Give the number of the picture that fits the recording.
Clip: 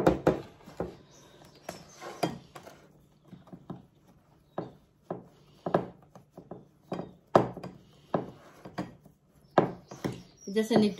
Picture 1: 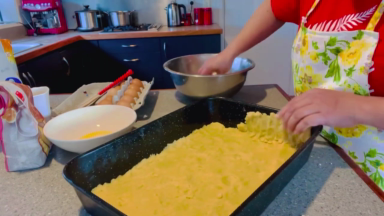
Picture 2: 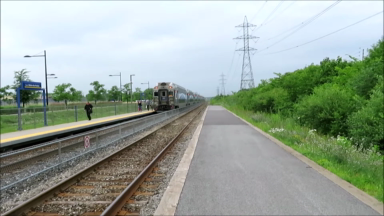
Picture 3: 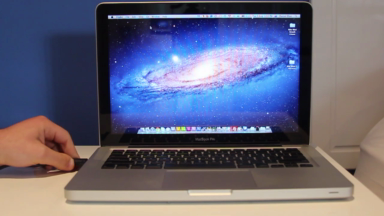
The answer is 1